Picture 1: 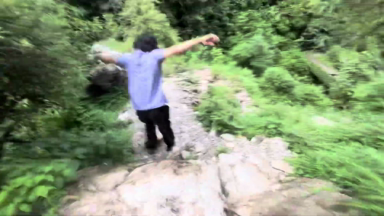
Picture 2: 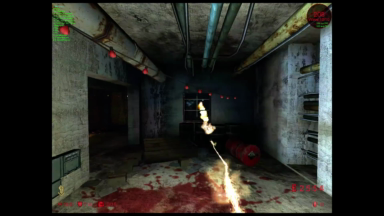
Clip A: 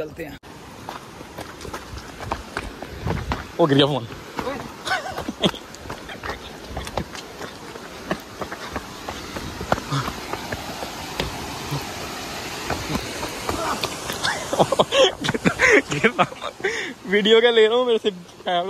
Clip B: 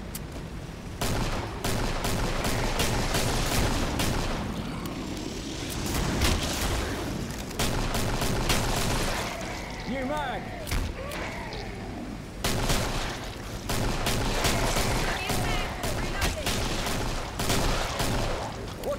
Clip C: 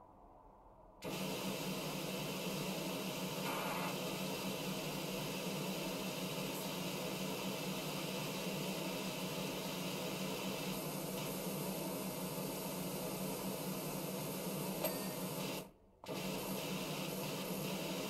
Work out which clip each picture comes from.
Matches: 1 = A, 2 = B